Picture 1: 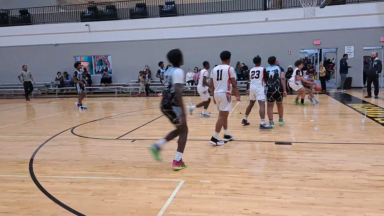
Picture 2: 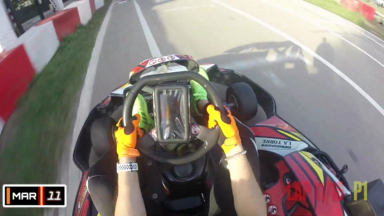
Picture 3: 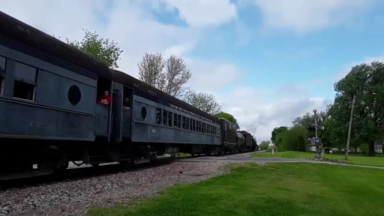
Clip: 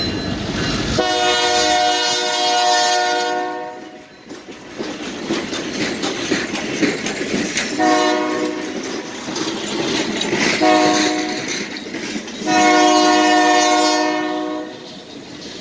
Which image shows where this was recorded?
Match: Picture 3